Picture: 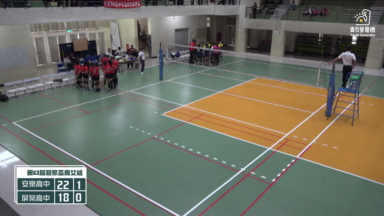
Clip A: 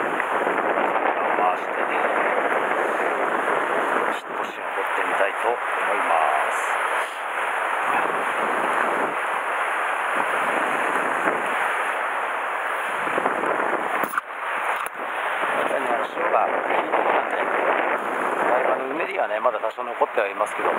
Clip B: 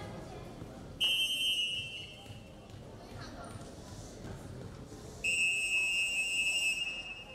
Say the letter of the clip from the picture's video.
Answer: B